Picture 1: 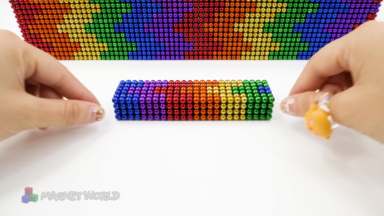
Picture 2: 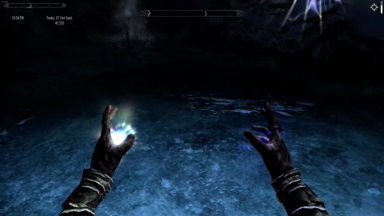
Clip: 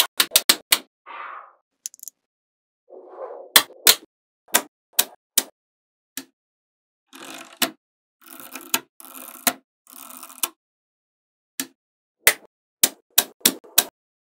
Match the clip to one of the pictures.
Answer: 1